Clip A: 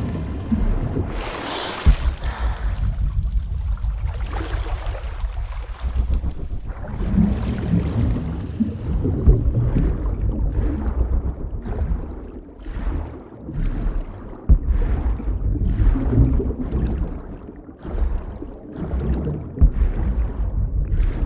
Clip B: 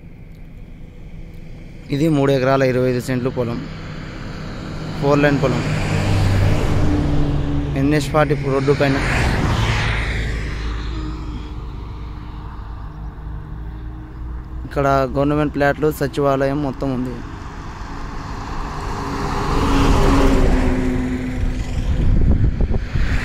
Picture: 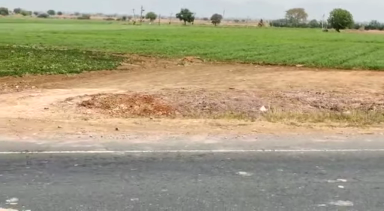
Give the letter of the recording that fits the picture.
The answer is B